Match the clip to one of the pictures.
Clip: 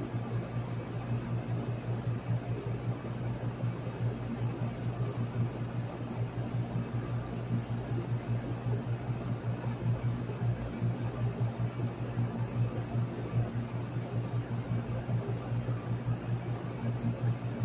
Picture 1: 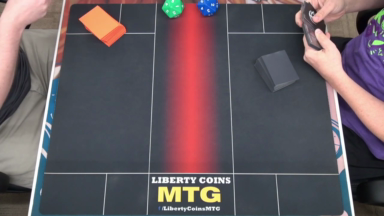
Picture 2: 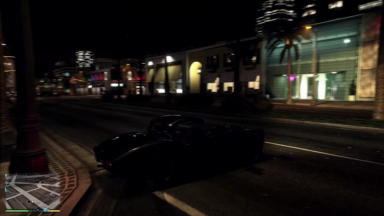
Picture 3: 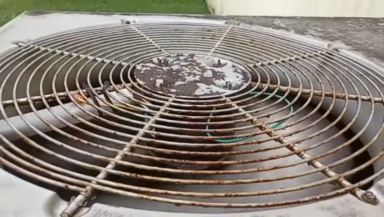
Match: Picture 3